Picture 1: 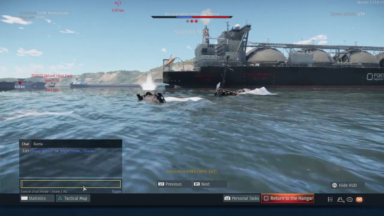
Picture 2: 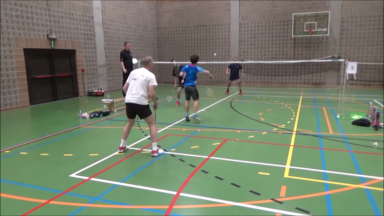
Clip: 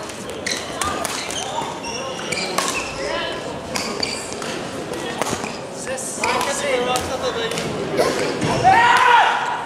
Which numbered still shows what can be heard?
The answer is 2